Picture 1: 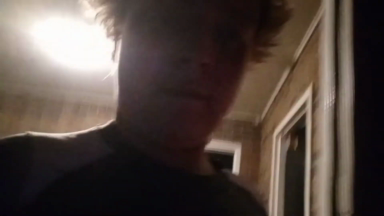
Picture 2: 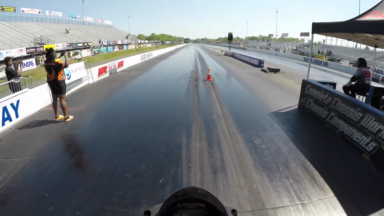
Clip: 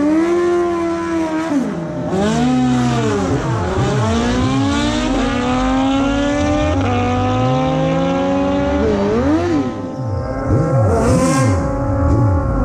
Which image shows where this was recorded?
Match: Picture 2